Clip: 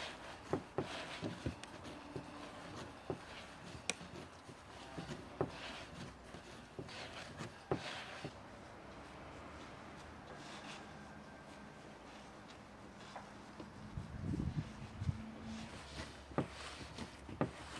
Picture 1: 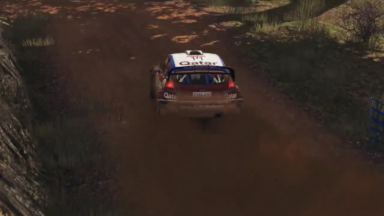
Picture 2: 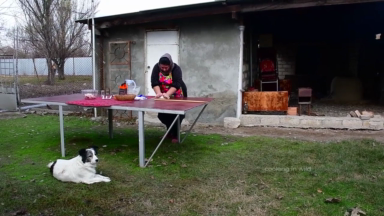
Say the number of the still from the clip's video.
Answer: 2